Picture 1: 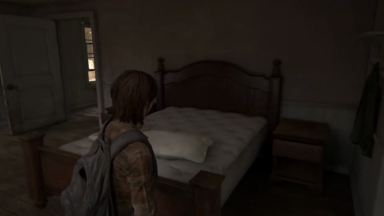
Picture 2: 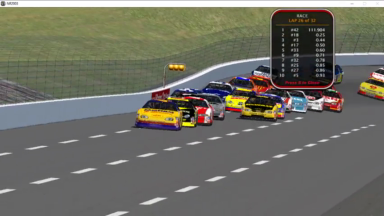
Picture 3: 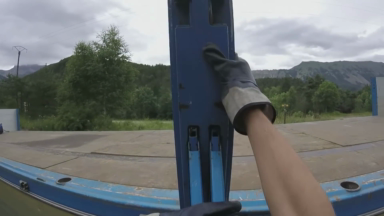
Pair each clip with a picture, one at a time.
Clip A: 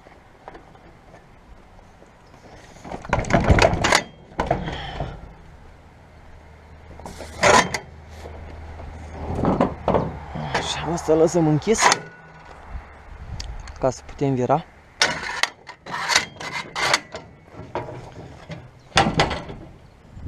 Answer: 3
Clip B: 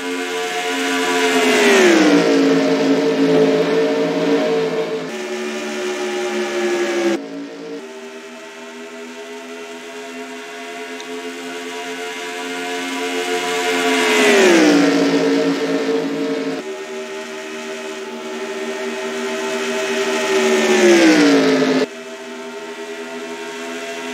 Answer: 2